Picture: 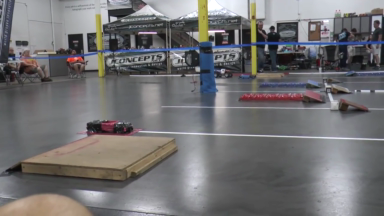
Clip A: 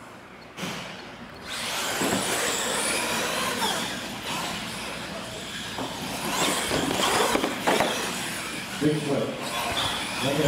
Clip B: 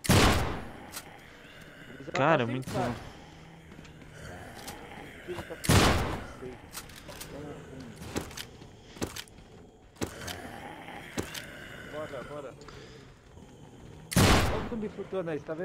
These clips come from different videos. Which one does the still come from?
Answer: A